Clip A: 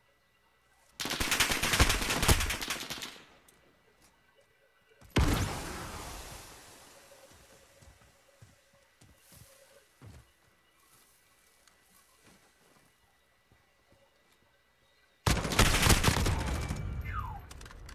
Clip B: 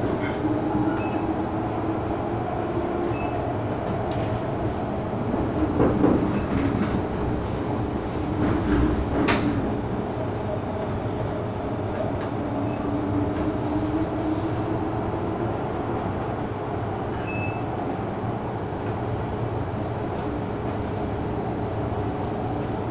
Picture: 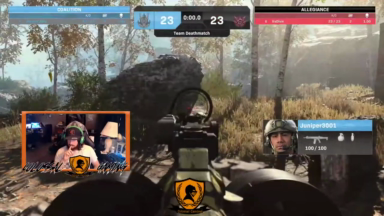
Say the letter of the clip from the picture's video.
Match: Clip A